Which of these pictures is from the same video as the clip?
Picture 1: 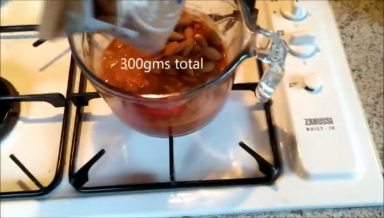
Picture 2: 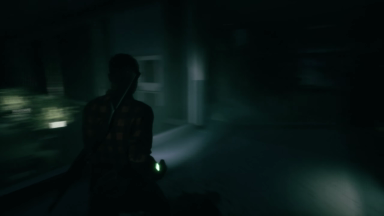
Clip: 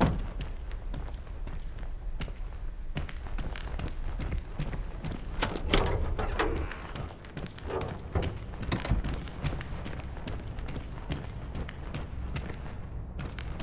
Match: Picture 2